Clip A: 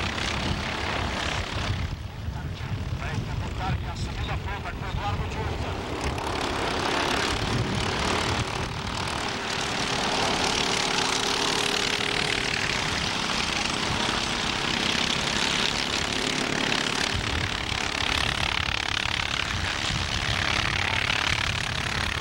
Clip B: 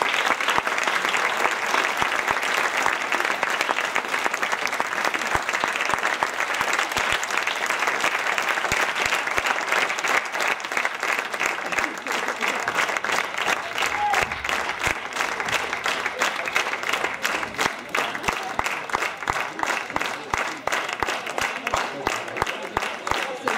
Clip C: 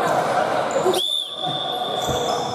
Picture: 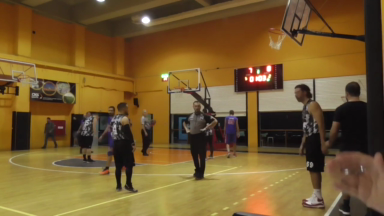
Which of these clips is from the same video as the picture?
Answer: C